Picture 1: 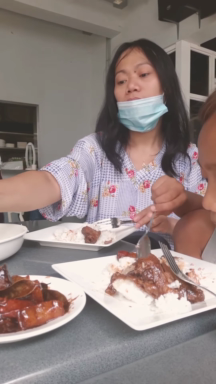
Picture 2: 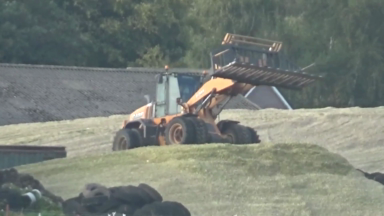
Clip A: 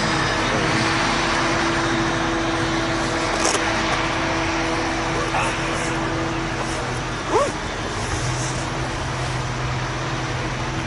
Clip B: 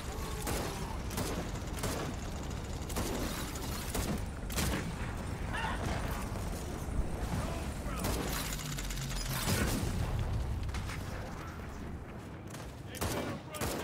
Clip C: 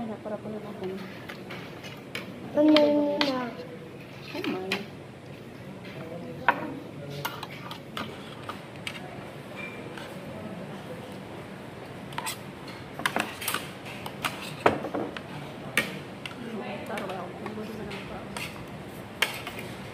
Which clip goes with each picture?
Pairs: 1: C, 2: A